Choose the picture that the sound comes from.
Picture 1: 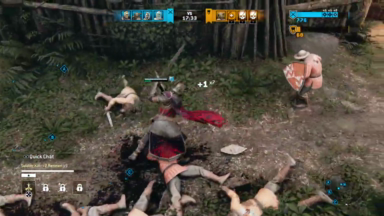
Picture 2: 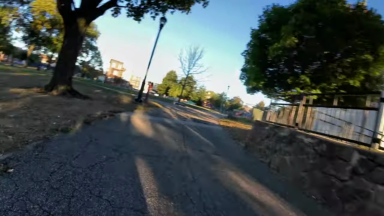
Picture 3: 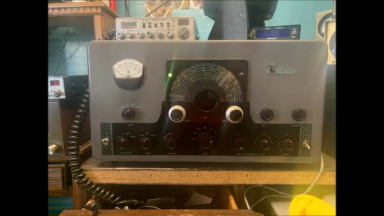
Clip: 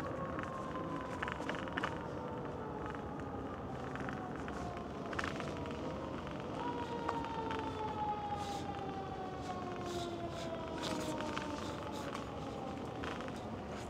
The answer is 2